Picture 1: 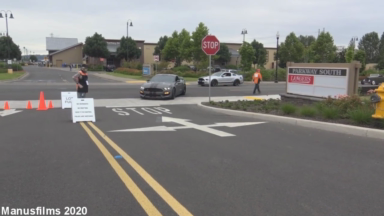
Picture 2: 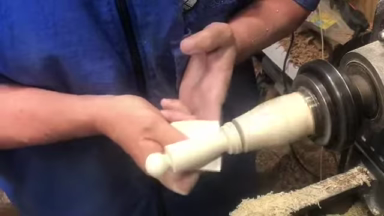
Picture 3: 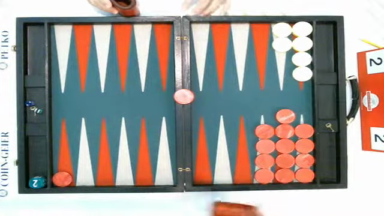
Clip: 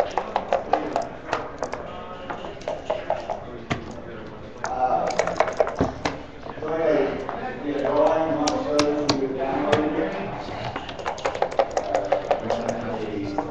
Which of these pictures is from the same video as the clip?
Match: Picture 3